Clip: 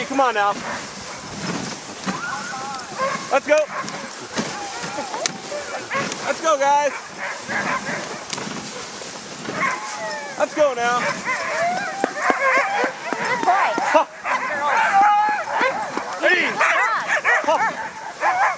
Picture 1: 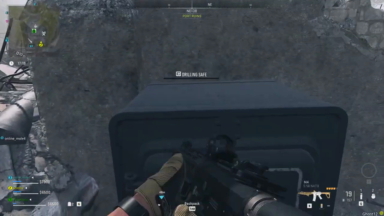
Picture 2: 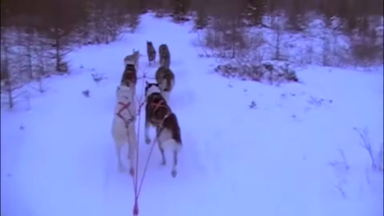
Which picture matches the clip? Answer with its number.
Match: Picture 2